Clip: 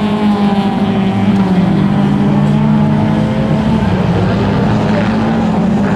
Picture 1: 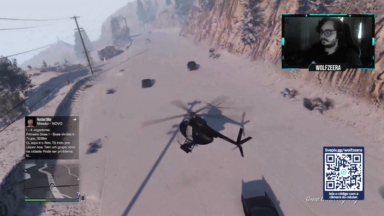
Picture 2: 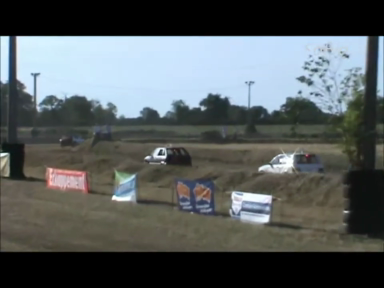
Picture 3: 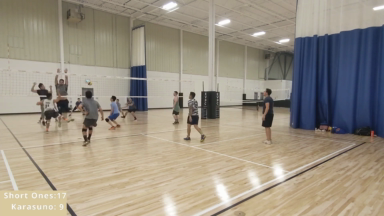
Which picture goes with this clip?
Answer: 2